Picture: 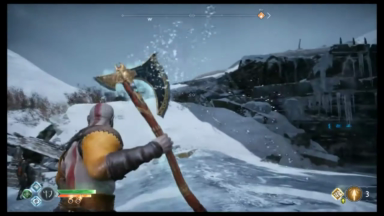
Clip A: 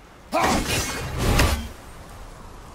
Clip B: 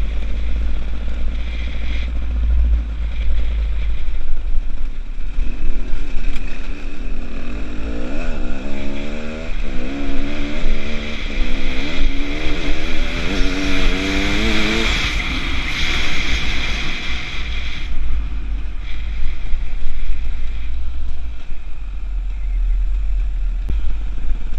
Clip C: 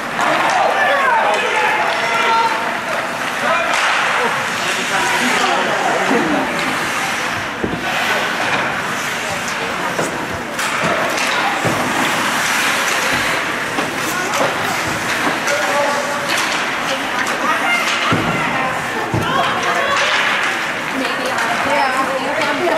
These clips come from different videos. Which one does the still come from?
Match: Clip A